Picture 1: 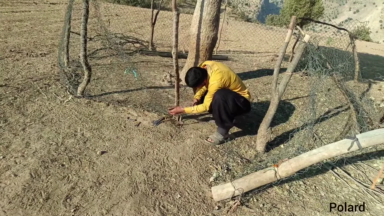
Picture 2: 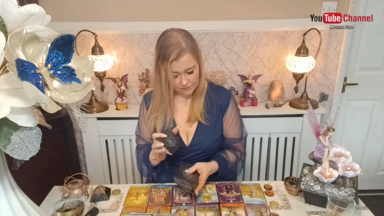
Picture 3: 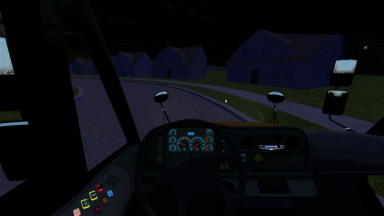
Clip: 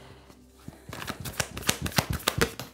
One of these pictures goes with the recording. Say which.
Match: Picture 2